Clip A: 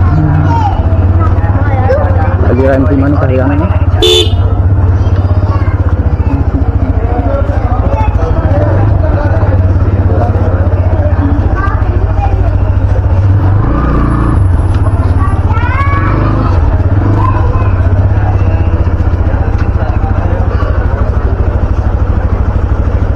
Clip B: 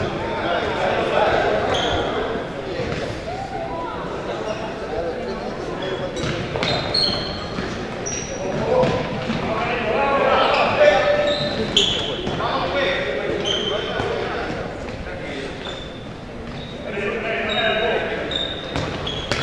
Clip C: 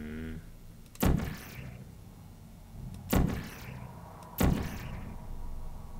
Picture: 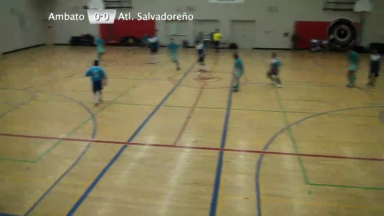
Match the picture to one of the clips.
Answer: B